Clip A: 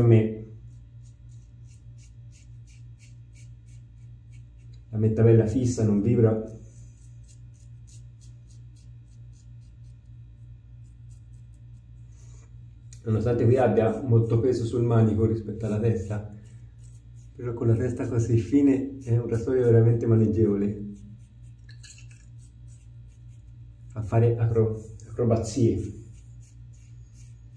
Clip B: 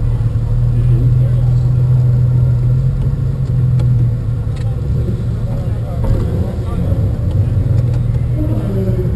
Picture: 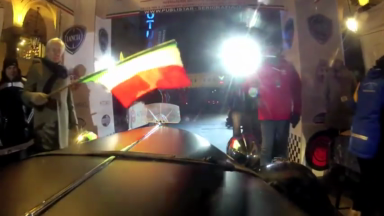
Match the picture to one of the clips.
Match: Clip B